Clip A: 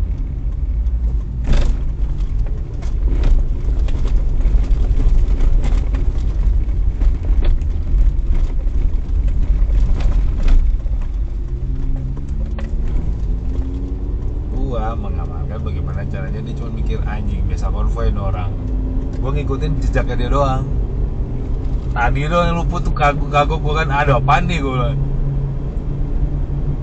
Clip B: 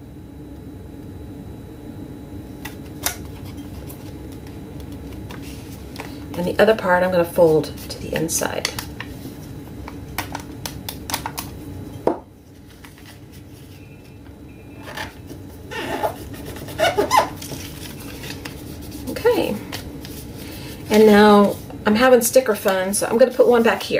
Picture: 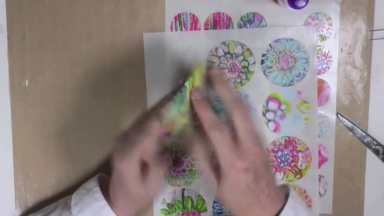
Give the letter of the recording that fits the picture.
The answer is B